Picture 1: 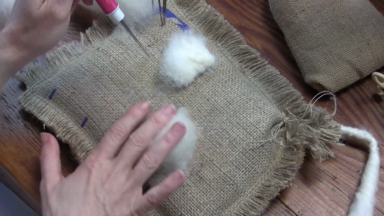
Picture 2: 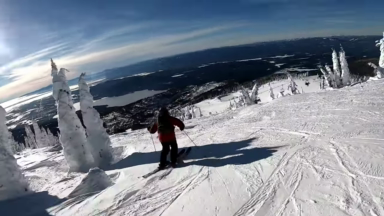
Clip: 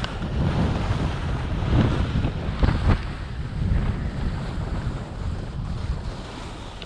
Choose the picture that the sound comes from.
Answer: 2